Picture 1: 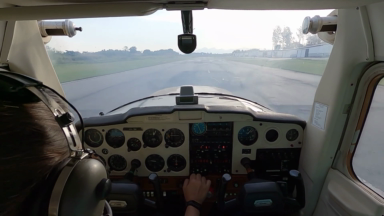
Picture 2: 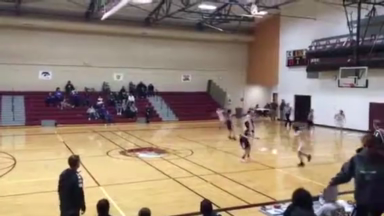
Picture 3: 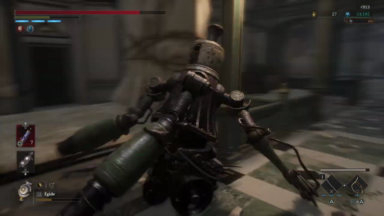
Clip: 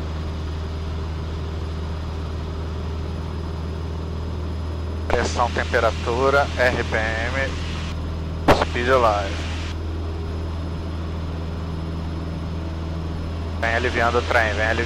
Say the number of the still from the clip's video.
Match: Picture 1